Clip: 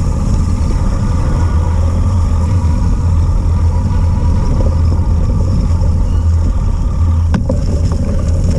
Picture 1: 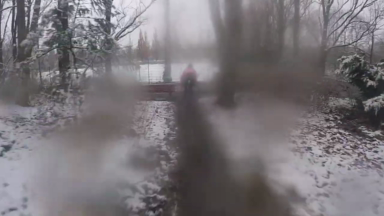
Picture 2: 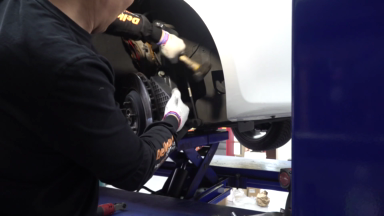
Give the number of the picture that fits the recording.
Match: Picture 1